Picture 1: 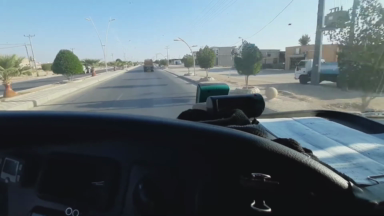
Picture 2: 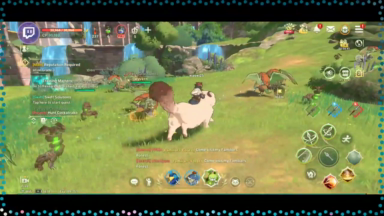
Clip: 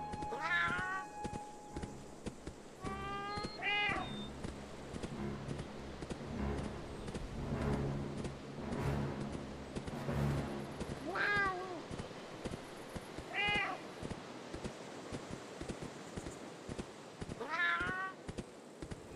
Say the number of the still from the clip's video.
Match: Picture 2